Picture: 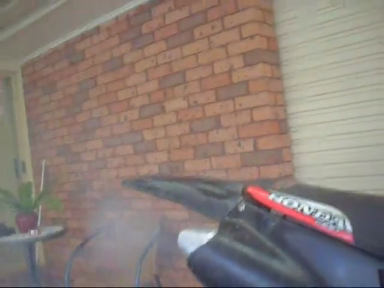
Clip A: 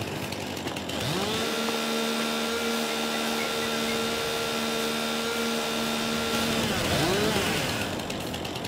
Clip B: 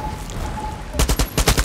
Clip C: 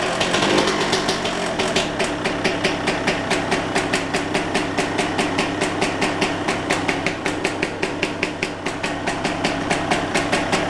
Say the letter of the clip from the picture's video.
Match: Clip C